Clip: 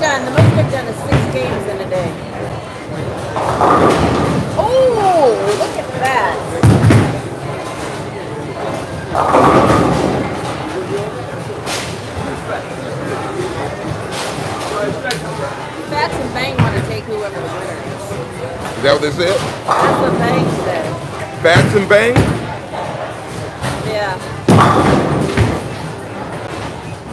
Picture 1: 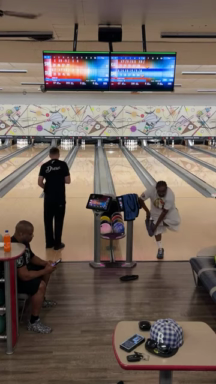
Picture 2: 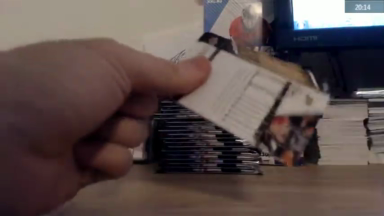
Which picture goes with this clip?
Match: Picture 1